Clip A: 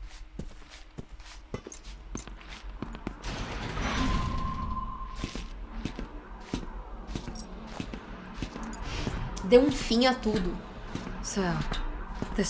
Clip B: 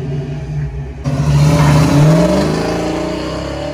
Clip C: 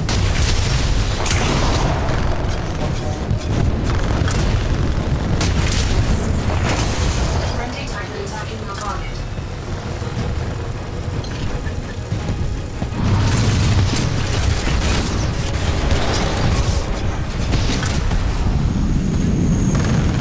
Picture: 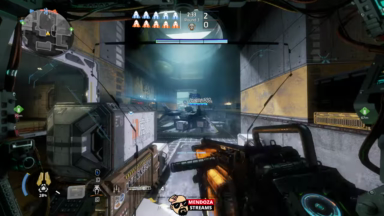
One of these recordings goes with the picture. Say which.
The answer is C